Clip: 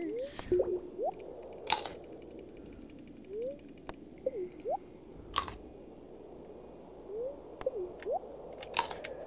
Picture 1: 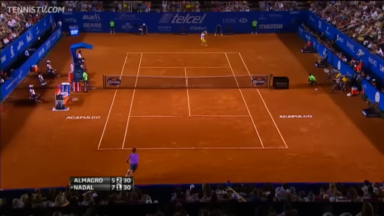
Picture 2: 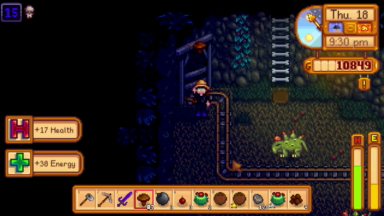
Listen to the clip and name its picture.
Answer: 2